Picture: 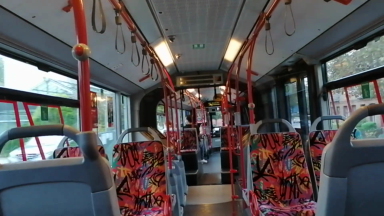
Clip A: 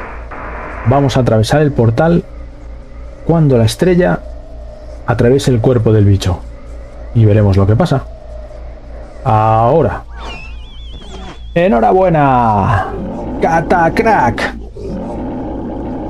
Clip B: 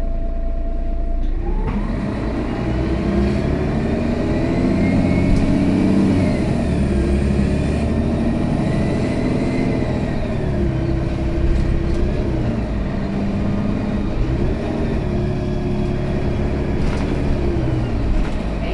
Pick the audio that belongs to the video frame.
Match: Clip B